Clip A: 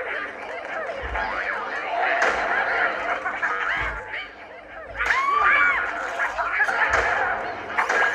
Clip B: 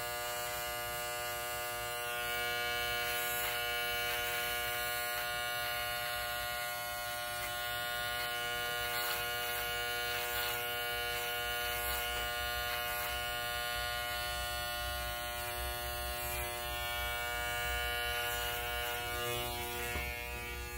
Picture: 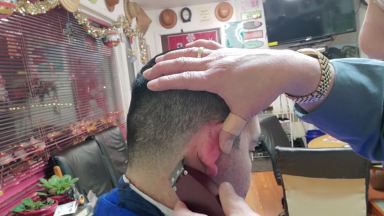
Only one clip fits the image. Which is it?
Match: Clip B